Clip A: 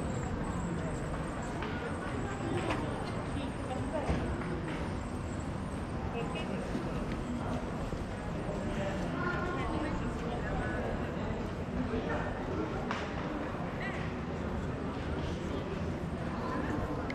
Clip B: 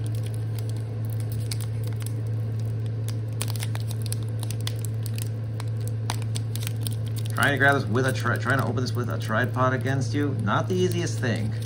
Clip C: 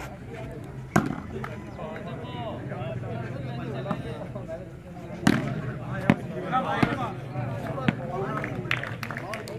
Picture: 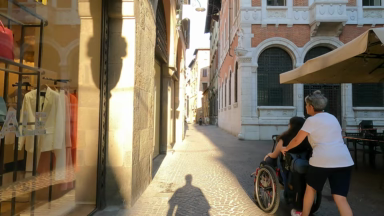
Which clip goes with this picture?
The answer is A